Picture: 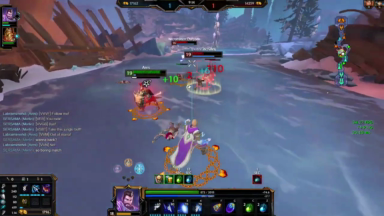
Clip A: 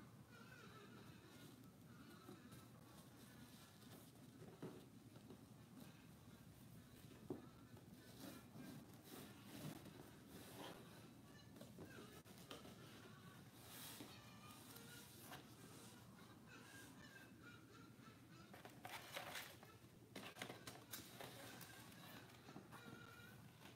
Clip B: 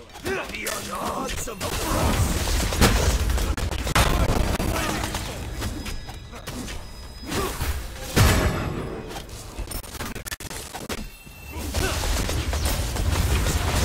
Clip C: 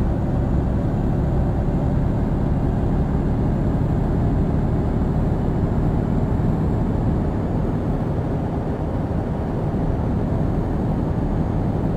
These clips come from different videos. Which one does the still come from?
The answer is B